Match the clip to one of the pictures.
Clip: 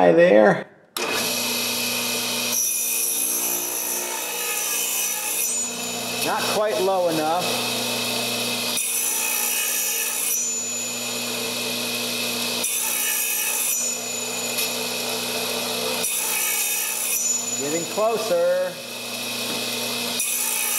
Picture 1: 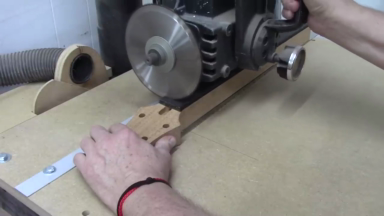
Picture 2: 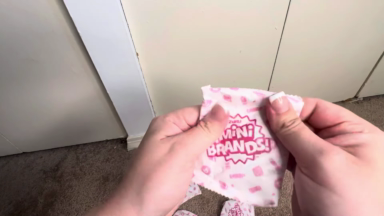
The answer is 1